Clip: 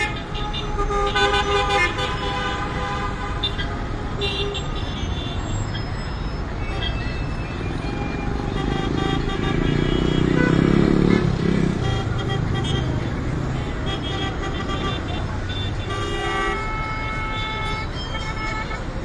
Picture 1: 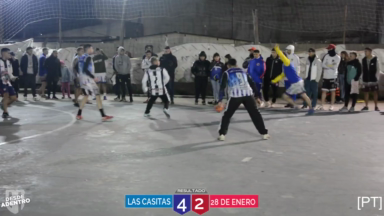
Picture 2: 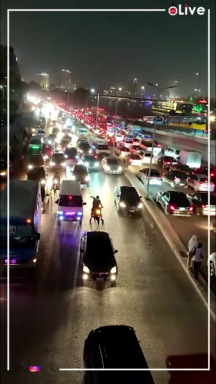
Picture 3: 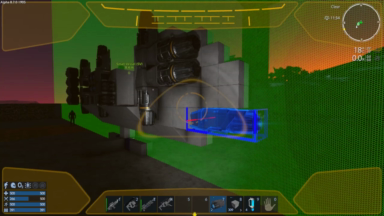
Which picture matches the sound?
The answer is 2